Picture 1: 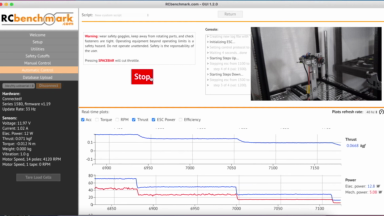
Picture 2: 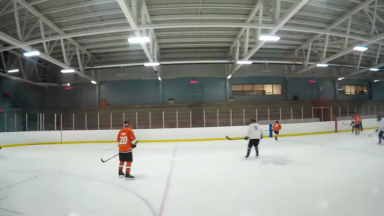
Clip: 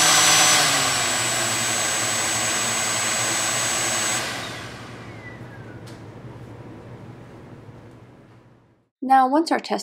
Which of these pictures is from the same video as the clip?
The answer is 1